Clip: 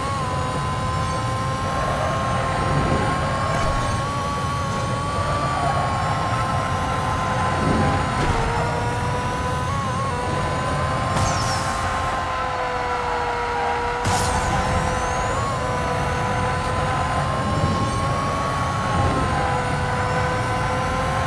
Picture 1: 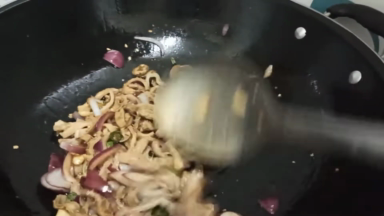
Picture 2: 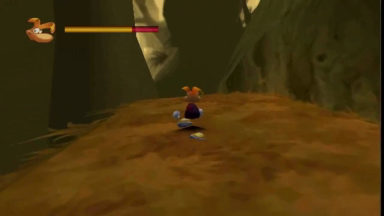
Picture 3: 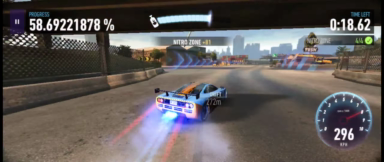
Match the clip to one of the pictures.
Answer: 3